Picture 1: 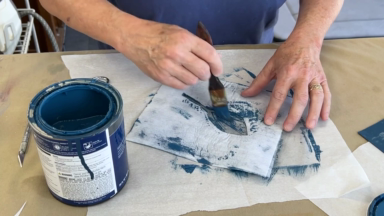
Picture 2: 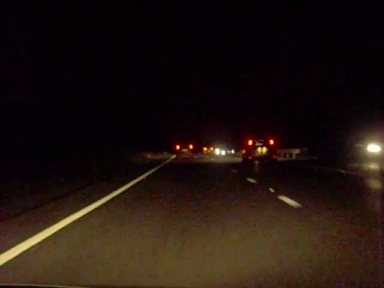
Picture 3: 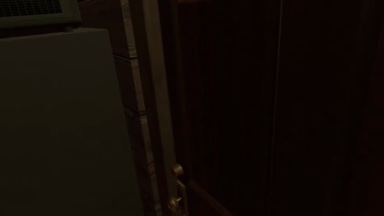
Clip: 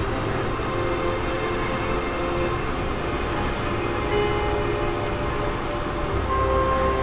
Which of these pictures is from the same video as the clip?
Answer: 2